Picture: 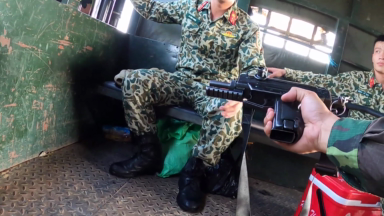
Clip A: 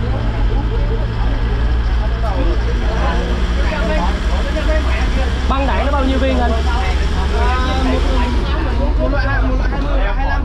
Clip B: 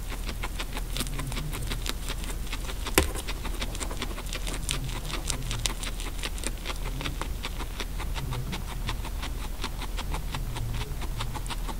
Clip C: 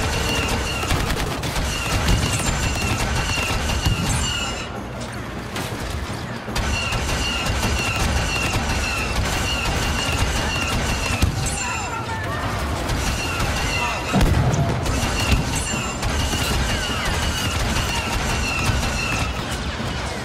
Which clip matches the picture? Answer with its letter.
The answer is A